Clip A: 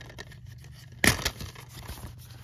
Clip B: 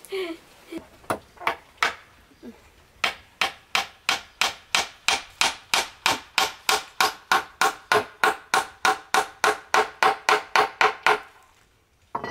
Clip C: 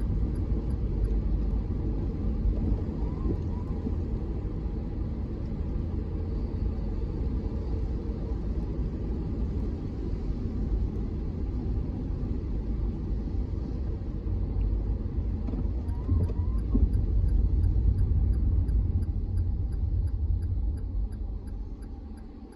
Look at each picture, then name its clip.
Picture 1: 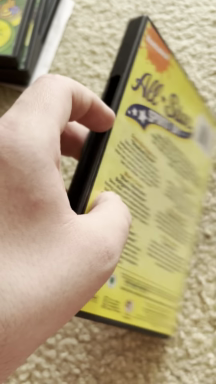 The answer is A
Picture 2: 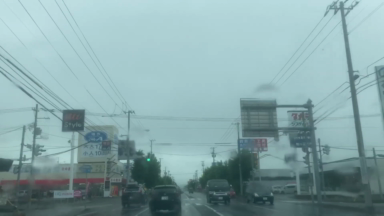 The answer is C